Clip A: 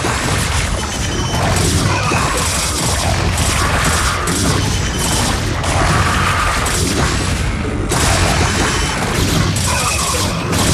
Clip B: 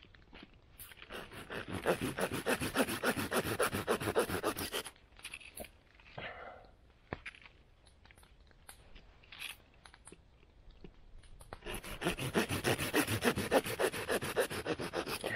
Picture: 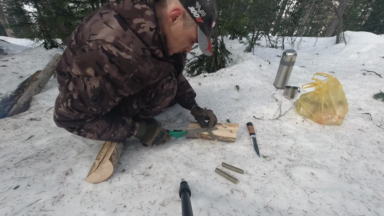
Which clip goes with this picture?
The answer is B